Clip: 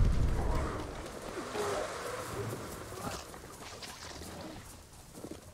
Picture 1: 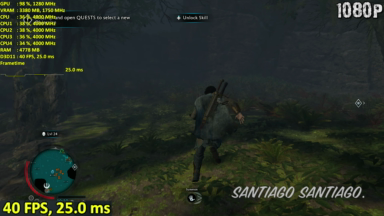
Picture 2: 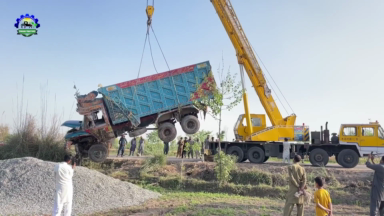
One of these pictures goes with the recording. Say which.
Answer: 1